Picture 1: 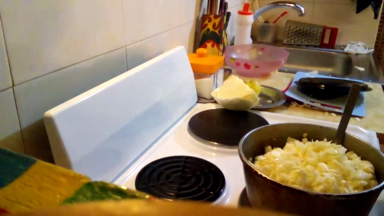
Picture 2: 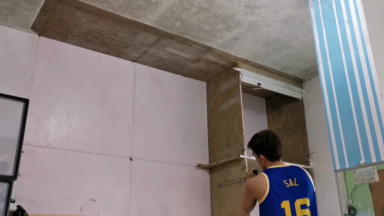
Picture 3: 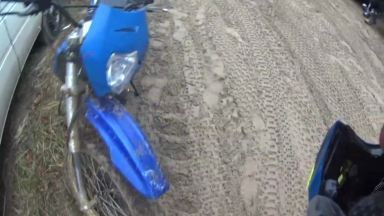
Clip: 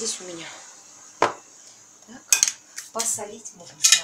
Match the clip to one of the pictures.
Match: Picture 1